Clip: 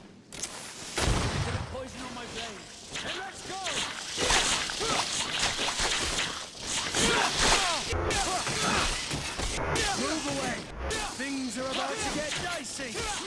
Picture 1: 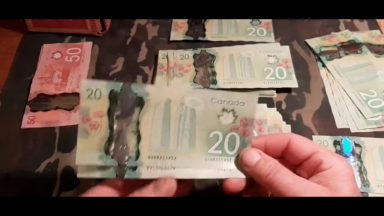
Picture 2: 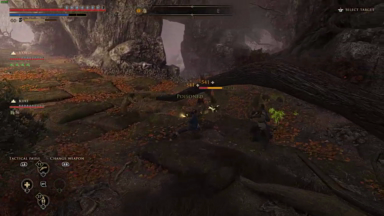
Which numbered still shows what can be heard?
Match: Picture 2